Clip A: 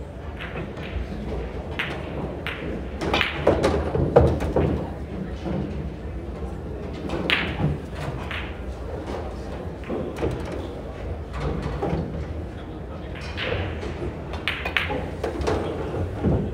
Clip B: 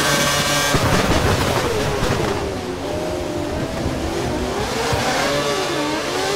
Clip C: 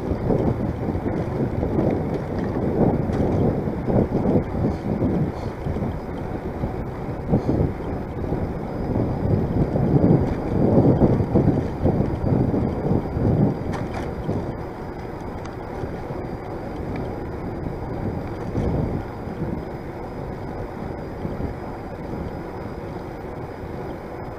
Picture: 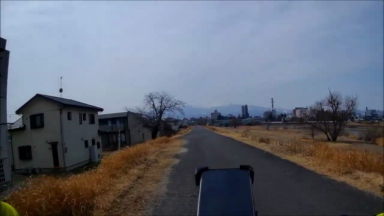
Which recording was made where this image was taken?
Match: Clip C